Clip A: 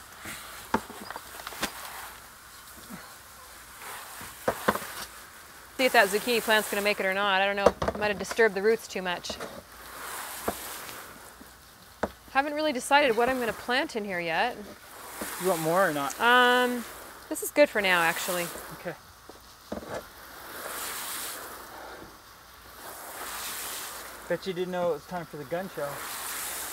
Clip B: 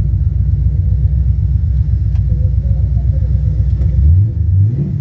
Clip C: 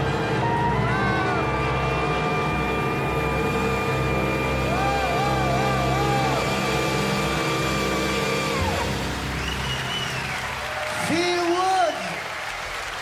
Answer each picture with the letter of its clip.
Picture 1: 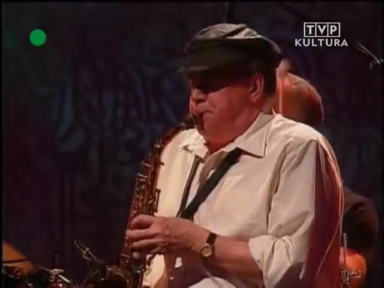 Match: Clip C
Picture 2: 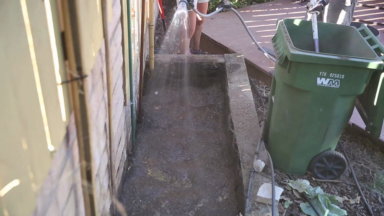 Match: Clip A